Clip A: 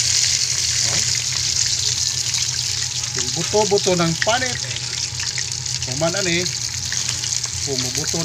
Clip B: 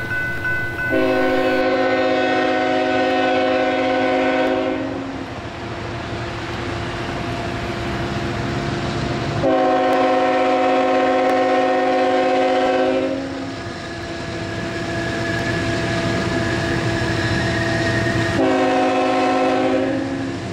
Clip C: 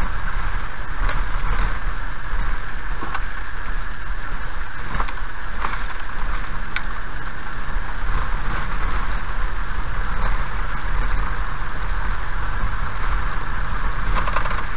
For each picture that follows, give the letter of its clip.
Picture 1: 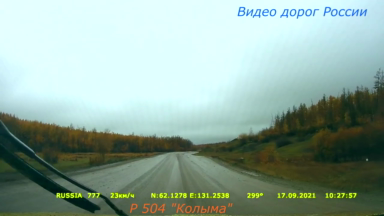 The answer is C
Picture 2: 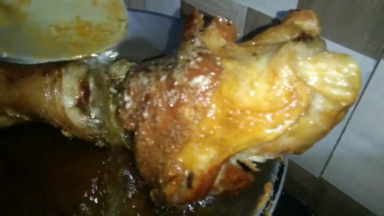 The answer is A